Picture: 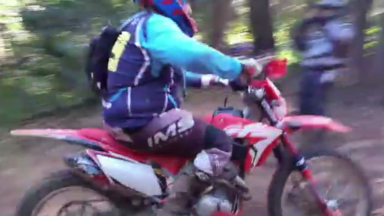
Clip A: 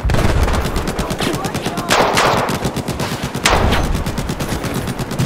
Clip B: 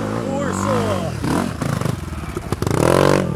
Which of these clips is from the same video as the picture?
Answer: B